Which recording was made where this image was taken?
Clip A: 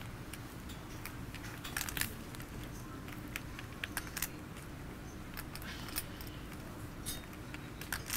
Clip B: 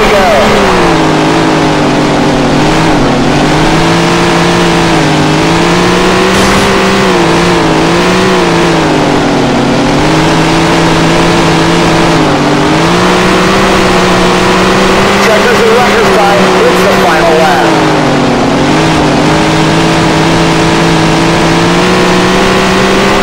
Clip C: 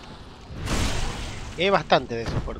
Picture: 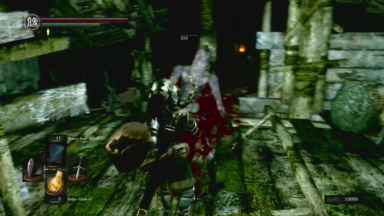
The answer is C